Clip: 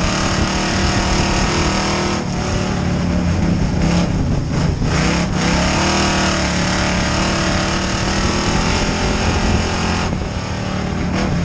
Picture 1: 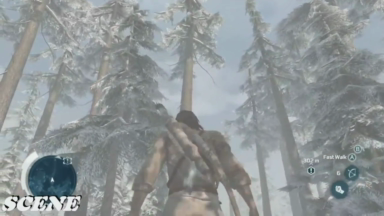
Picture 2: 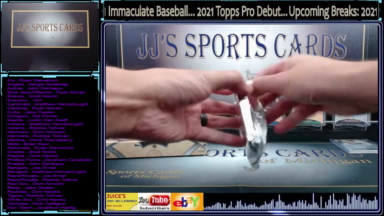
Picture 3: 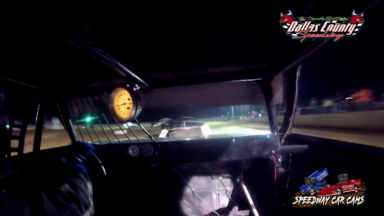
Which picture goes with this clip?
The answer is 3